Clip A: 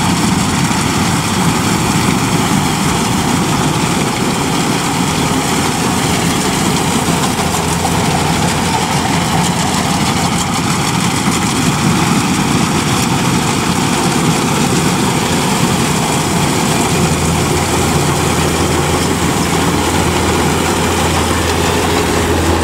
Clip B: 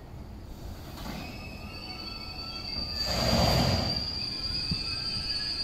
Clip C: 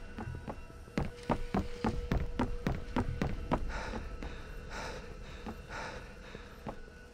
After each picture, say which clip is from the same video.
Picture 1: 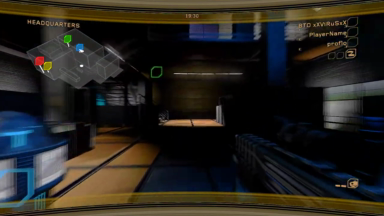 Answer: C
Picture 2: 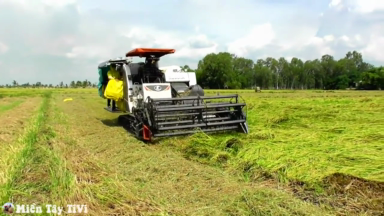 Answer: A